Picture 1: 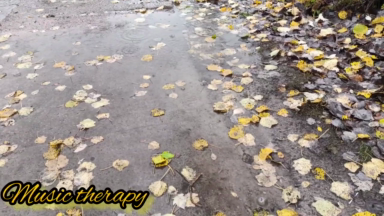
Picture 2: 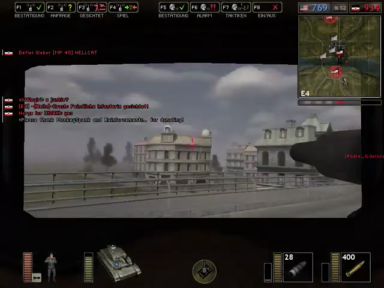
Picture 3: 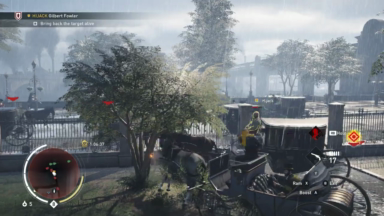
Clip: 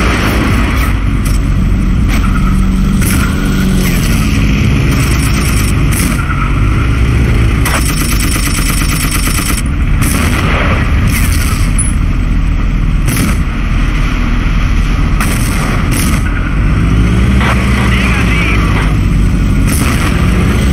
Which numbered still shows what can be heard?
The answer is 2